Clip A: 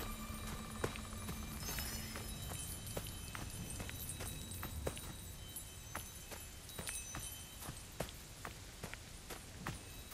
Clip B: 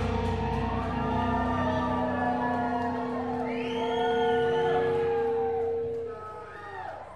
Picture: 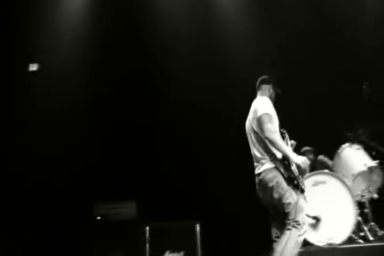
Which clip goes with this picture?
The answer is B